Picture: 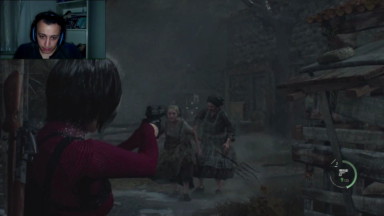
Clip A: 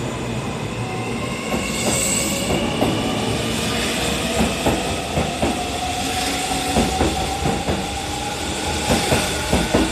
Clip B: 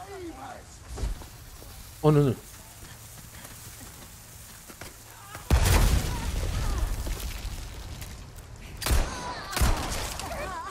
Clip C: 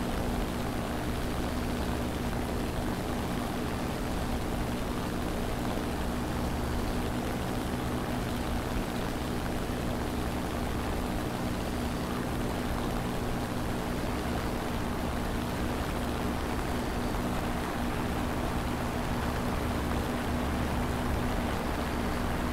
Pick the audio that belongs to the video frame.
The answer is B